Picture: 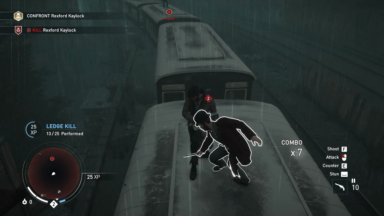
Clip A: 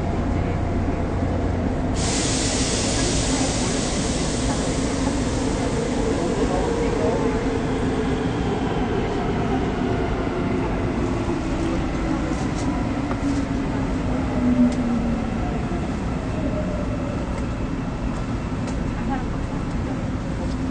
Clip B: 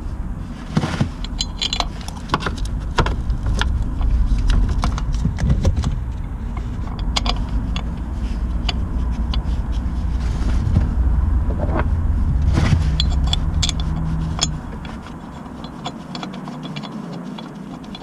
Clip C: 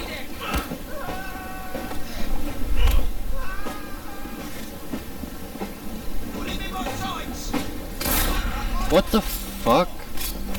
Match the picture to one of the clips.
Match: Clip C